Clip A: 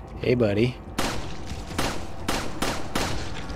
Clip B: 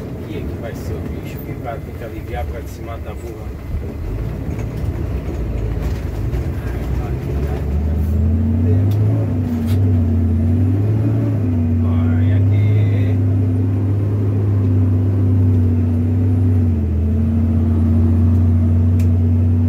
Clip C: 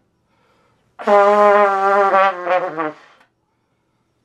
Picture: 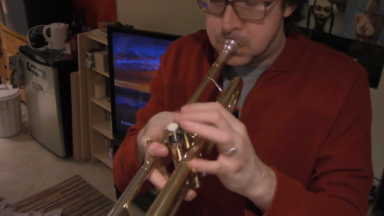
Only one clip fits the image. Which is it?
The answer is C